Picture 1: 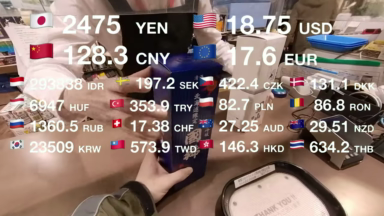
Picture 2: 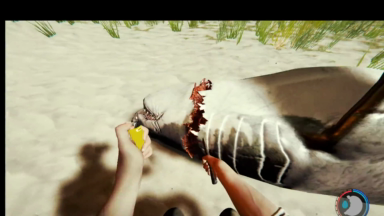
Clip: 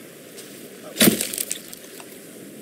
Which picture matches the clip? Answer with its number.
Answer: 2